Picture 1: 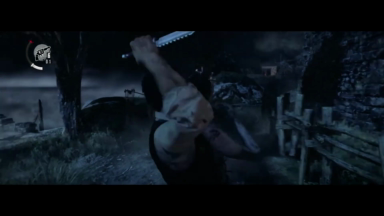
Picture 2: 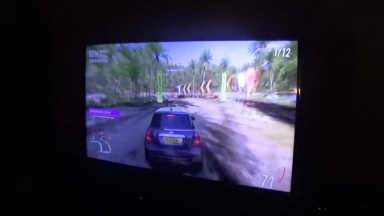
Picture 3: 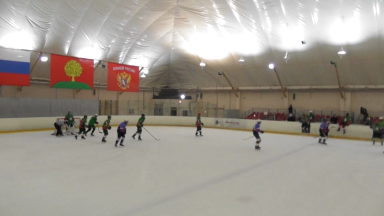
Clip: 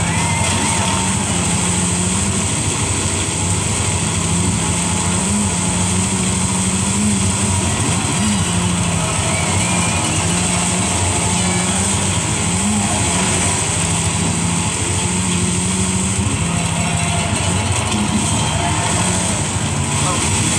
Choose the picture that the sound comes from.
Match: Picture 2